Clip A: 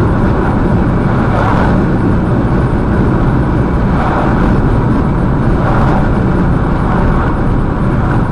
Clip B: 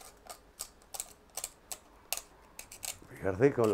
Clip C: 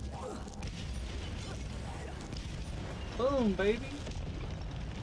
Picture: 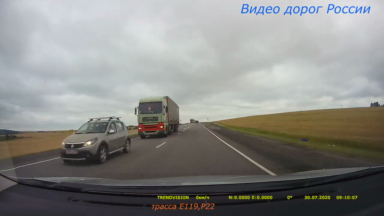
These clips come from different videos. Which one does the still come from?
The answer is A